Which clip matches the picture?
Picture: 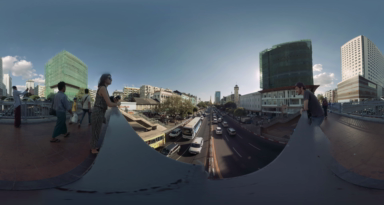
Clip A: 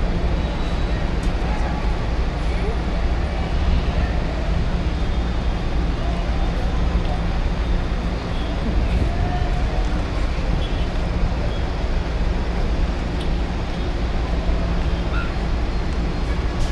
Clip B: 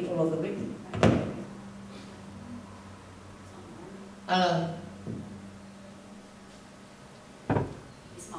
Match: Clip A